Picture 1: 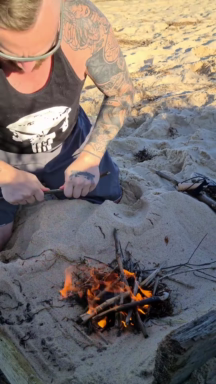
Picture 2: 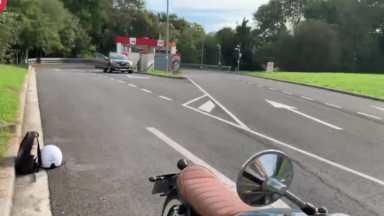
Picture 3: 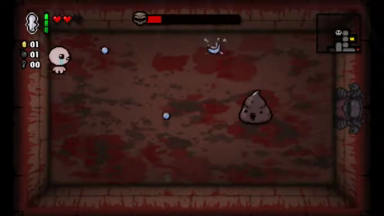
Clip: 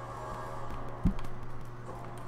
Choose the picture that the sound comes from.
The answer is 3